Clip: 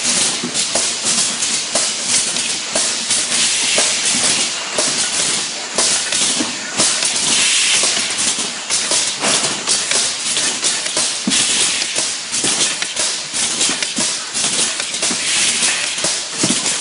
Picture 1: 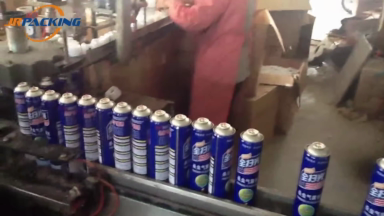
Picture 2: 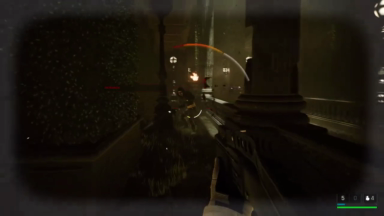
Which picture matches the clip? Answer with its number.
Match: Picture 1